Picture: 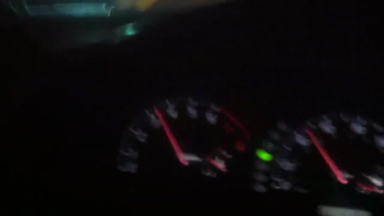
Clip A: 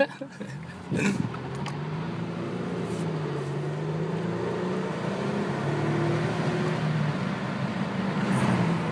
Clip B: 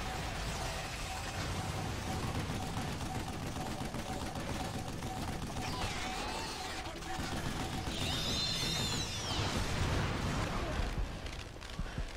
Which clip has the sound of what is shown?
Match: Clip A